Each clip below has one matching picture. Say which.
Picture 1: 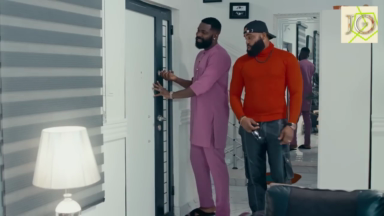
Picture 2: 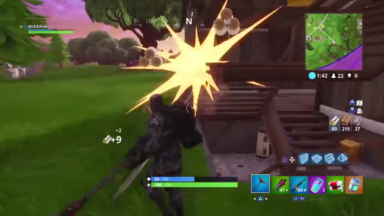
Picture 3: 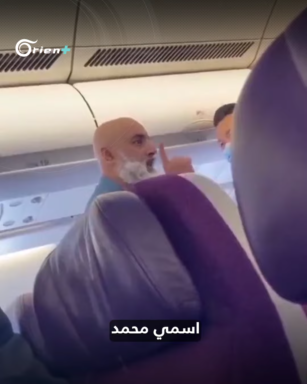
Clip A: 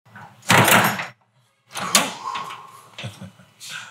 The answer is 1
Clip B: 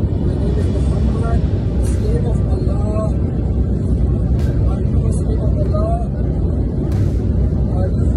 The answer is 3